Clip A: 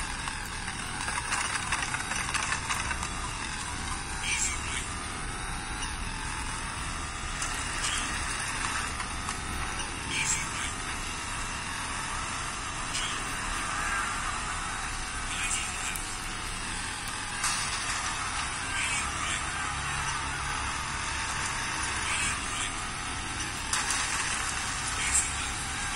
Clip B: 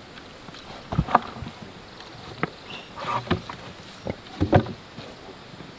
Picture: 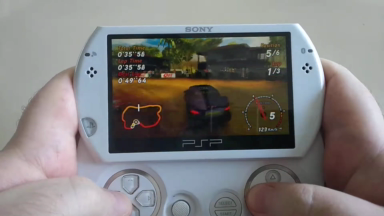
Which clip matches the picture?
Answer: A